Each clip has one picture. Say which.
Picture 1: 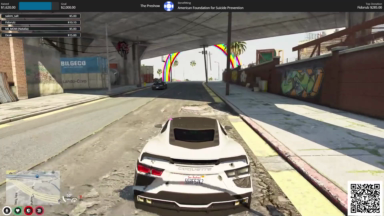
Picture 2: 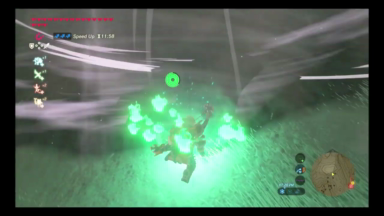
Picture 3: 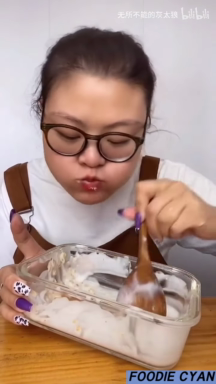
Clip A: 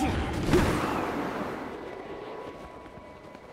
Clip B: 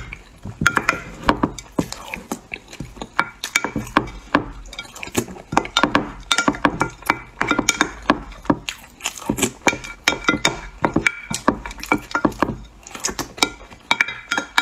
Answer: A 2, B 3